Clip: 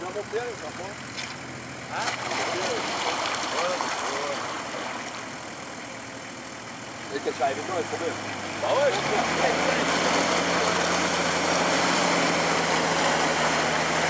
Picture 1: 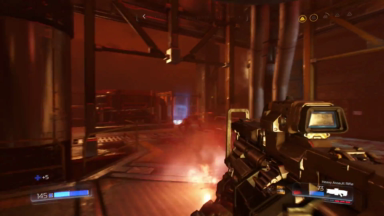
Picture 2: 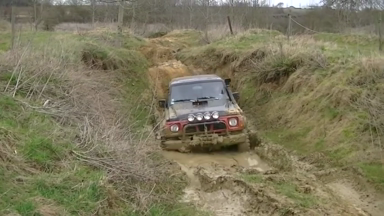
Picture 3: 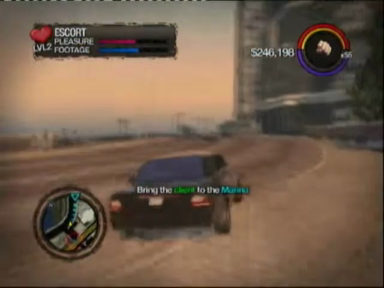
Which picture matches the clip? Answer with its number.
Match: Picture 2